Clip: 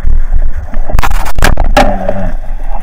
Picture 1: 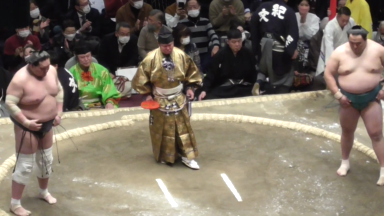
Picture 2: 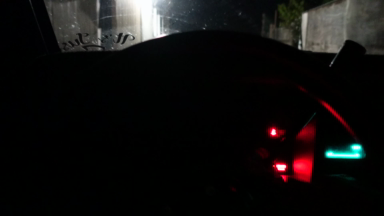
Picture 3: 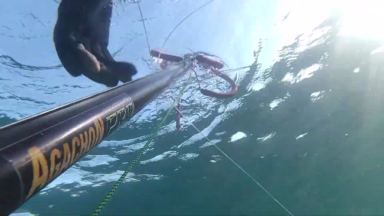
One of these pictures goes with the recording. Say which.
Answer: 3